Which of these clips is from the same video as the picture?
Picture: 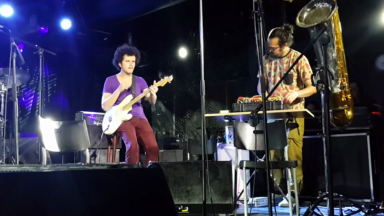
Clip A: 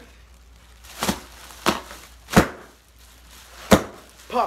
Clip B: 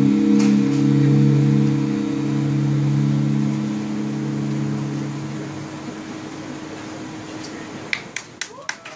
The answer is B